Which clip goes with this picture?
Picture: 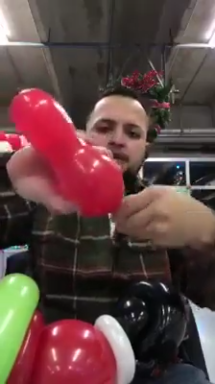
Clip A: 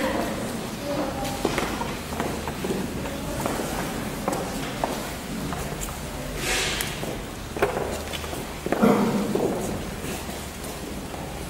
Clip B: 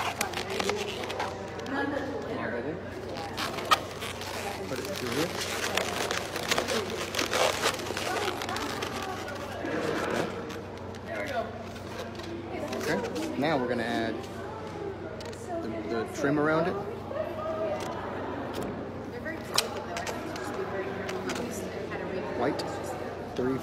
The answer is B